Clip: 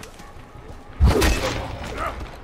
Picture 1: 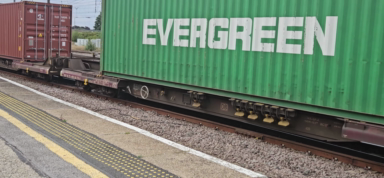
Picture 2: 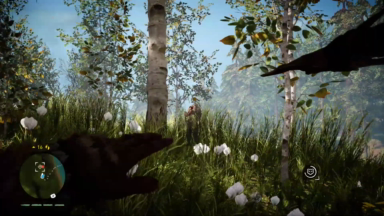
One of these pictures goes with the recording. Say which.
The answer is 2